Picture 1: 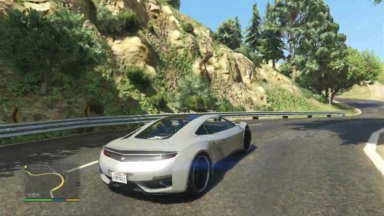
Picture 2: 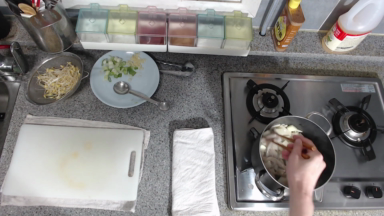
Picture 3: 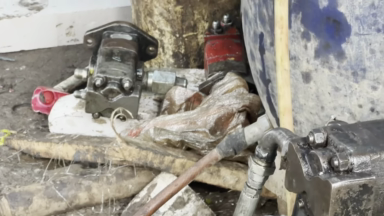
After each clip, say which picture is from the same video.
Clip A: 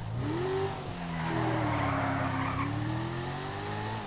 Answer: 1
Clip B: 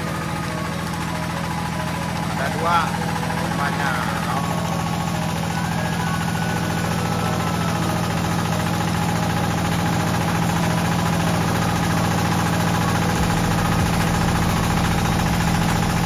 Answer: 3